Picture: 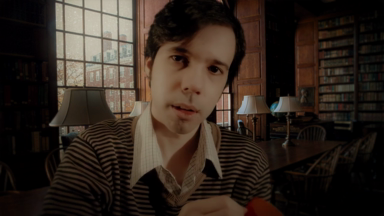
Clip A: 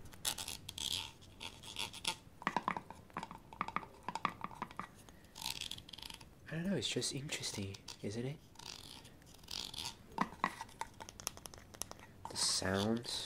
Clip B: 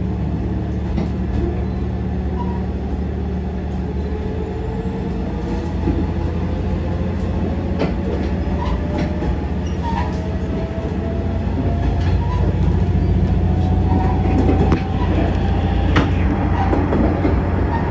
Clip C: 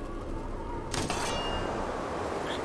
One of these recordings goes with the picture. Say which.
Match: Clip A